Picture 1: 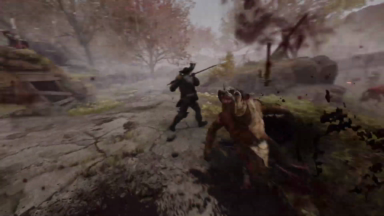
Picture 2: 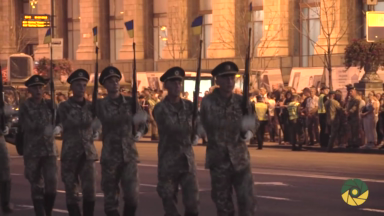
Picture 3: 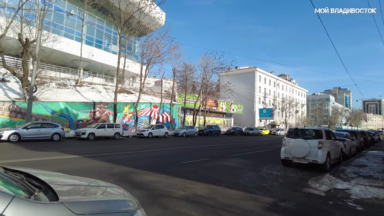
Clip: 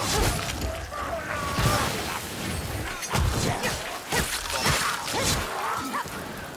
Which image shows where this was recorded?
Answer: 1